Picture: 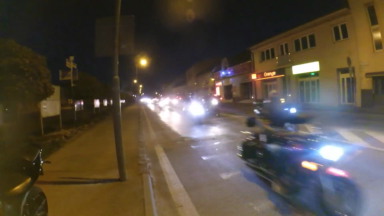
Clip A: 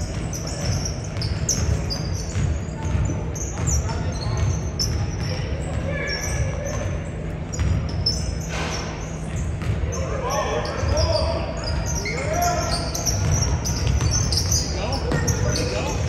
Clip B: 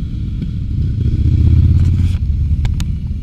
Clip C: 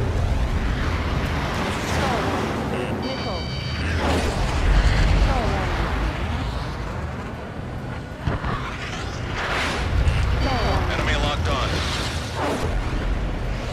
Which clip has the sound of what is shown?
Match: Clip B